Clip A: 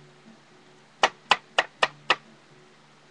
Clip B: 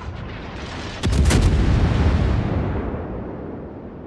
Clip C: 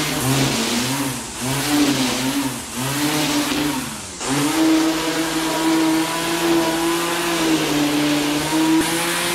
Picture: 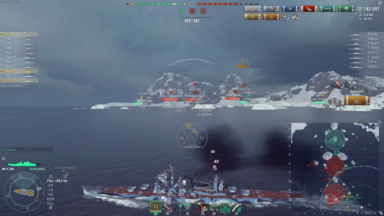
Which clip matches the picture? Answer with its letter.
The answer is B